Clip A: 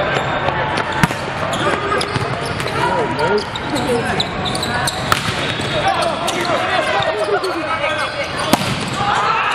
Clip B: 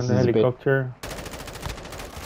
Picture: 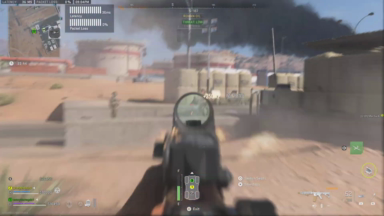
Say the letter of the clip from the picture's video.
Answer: B